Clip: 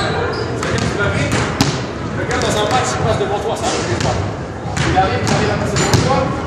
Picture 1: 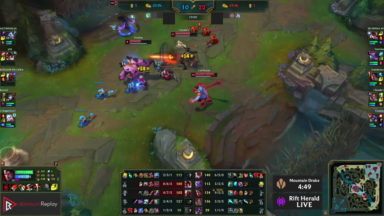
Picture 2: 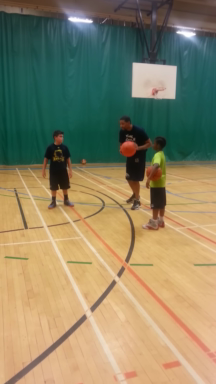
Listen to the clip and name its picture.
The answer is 2